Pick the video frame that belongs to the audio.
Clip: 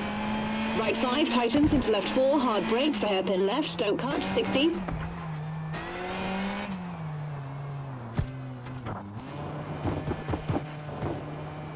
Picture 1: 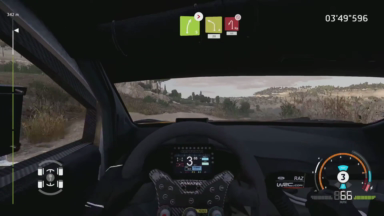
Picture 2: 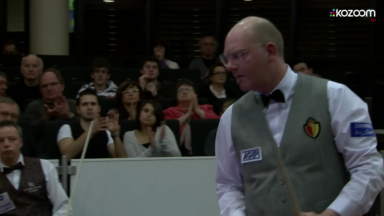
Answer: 1